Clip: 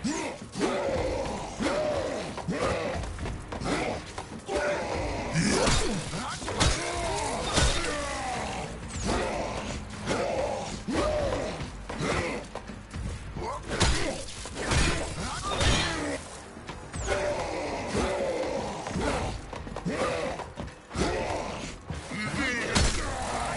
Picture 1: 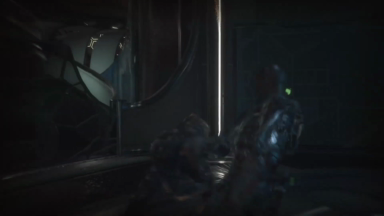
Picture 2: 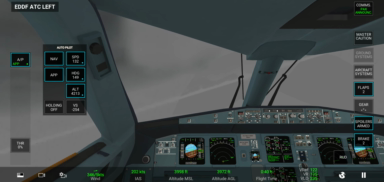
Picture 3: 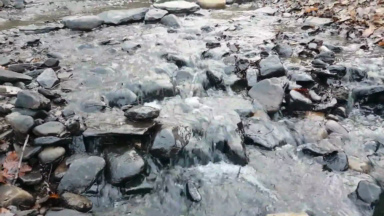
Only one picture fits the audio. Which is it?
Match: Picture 1